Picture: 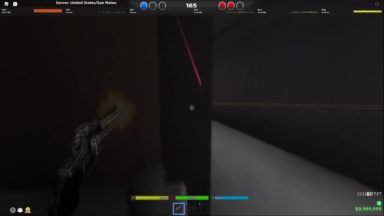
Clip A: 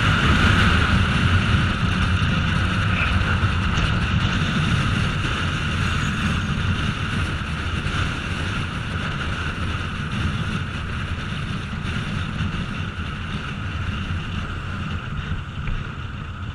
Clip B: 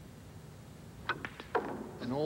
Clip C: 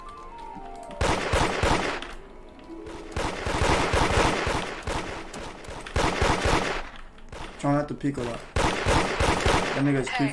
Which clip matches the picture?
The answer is C